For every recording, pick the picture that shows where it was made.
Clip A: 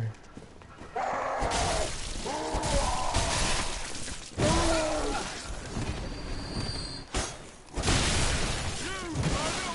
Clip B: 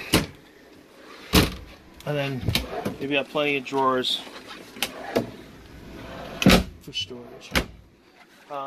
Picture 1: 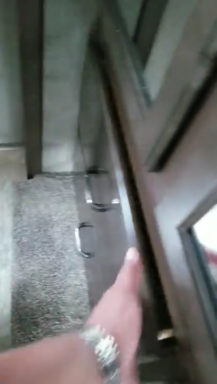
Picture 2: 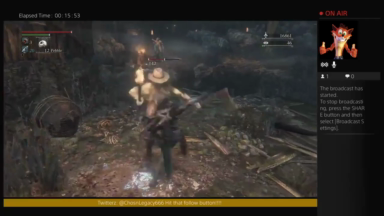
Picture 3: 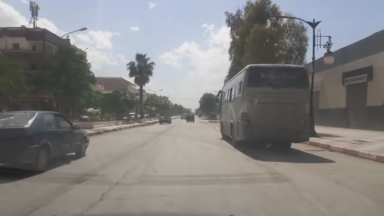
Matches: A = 2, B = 1